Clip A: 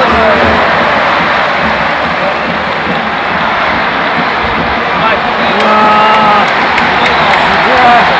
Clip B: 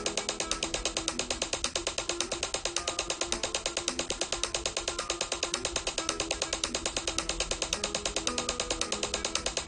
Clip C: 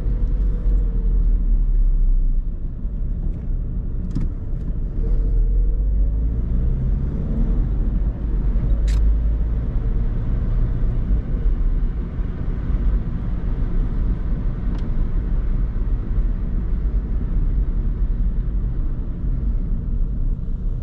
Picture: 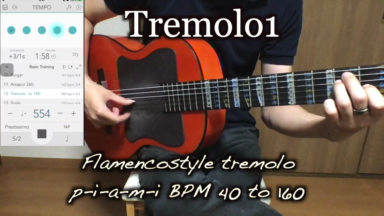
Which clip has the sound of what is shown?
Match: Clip B